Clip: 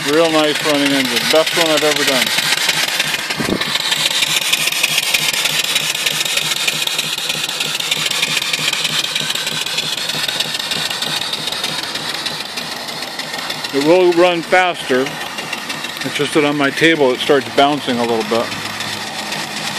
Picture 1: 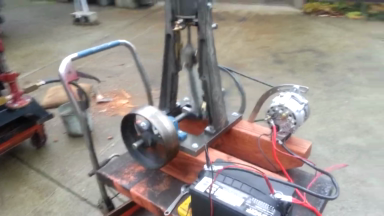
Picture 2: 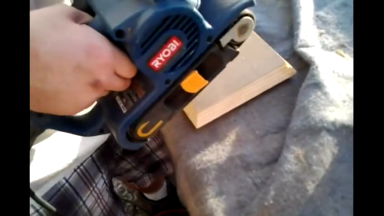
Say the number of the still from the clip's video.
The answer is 1